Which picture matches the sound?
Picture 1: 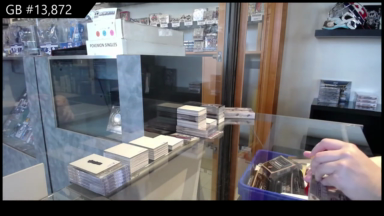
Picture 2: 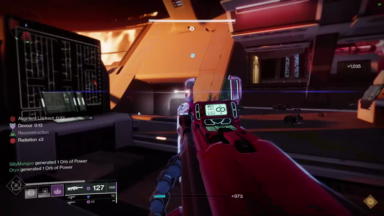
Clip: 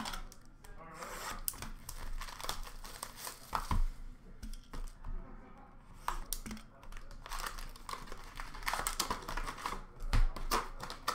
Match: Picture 1